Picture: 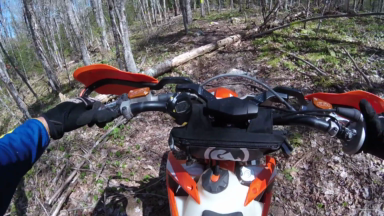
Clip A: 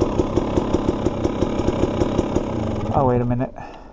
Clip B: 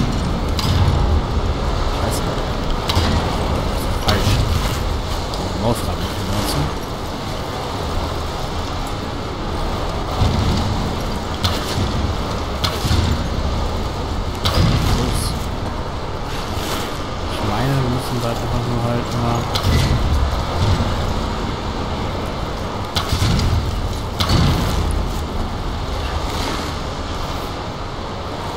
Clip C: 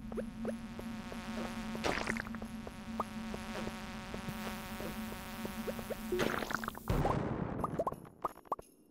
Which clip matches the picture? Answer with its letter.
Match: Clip A